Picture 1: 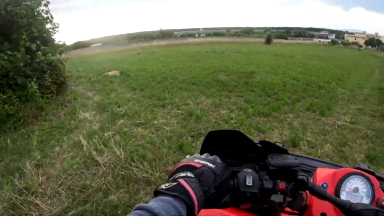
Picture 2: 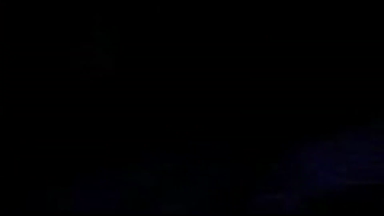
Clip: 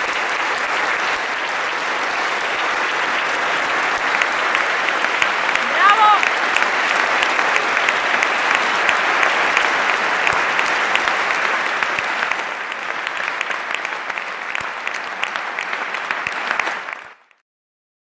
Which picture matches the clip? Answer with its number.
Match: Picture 2